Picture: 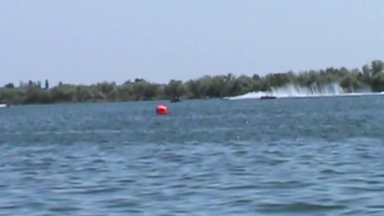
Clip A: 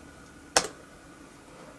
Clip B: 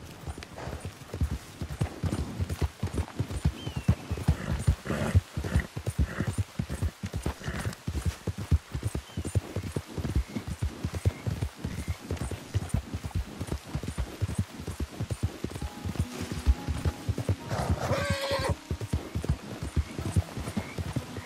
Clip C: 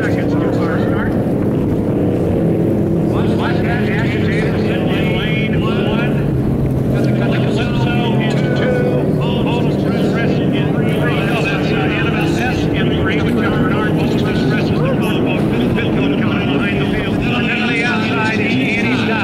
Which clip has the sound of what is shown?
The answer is C